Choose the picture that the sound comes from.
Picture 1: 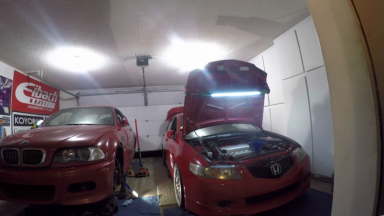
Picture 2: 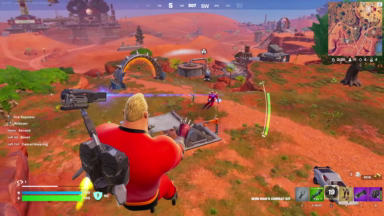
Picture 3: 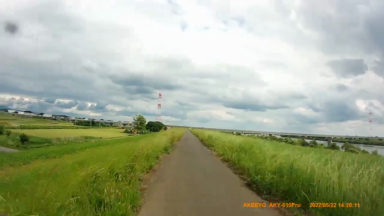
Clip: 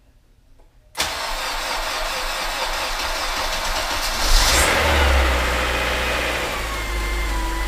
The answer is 1